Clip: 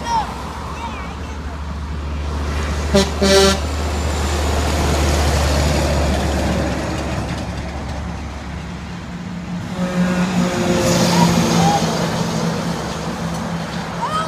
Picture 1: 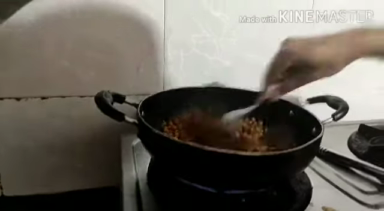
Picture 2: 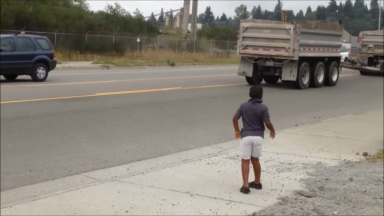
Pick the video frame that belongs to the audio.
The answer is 2